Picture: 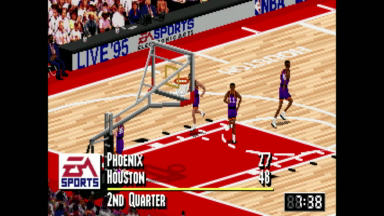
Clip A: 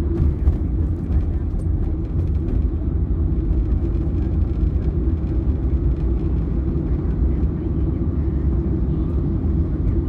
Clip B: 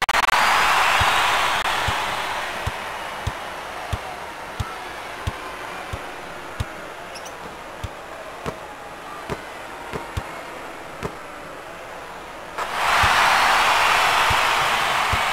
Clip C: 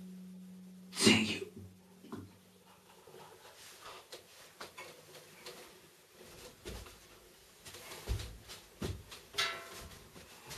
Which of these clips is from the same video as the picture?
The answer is B